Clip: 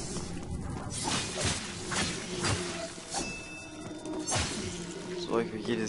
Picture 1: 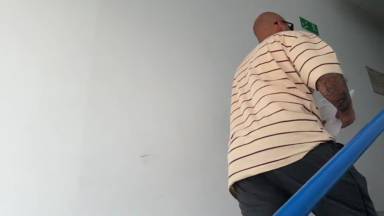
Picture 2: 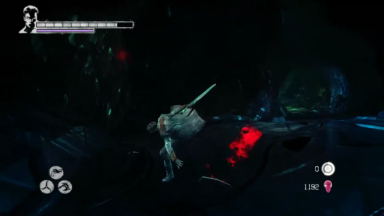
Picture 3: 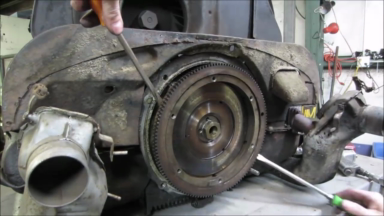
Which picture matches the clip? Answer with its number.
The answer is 2